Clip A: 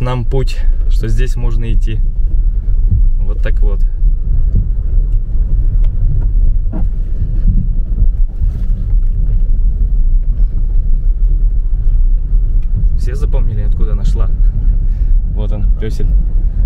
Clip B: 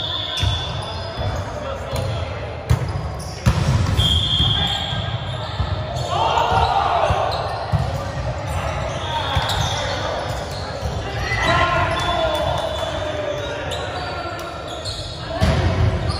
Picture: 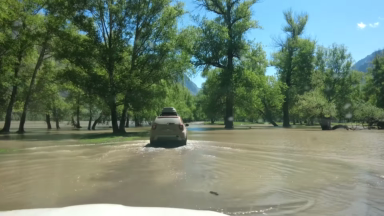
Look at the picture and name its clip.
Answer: A